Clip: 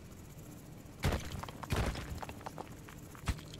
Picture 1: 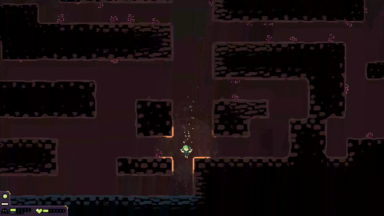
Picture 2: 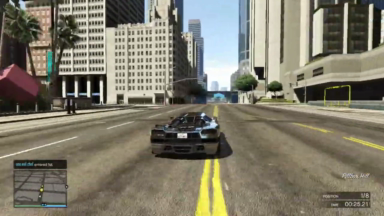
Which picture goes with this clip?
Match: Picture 1